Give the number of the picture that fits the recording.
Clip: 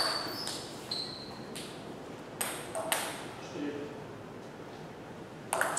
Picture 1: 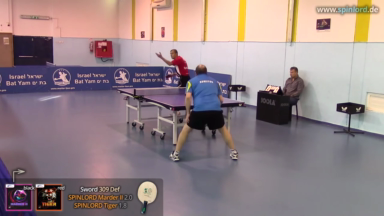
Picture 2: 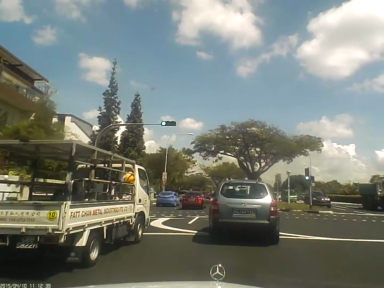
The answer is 1